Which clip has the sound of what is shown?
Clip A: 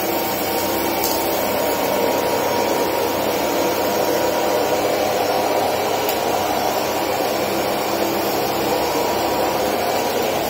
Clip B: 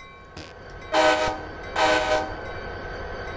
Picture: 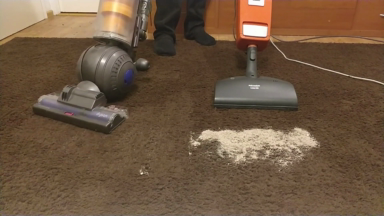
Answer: A